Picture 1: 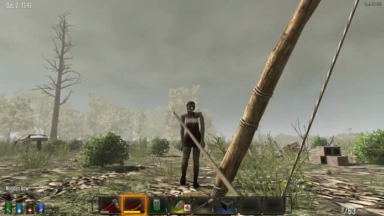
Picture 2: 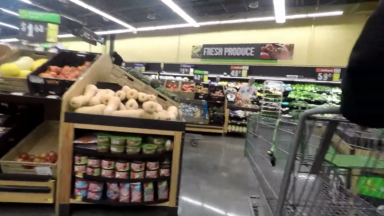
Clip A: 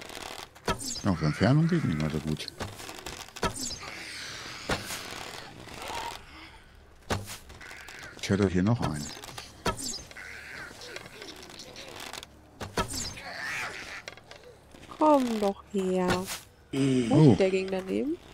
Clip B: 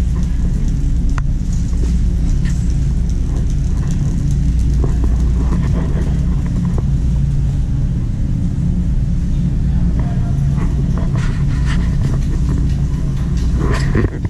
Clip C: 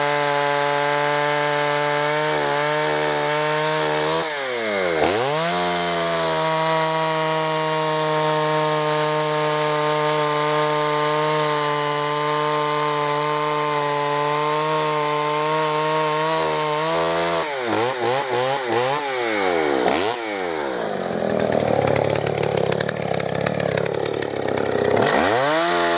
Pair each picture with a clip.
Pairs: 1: A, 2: B